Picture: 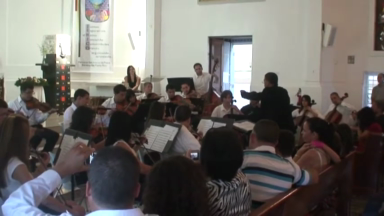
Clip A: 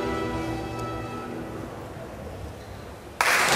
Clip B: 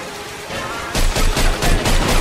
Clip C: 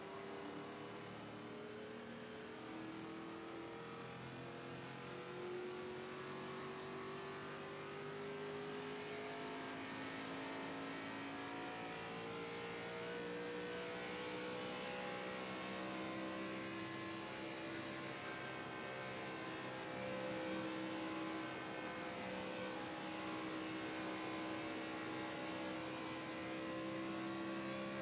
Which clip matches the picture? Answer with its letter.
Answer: A